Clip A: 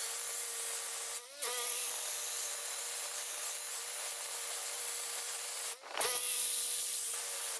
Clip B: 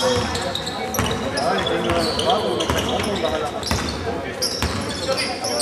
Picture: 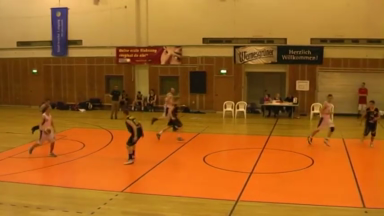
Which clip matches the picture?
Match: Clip B